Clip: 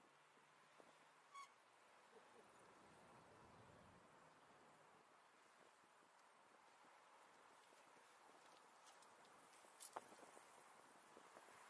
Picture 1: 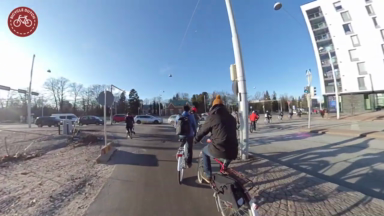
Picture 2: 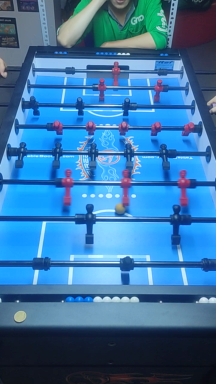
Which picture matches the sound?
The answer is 1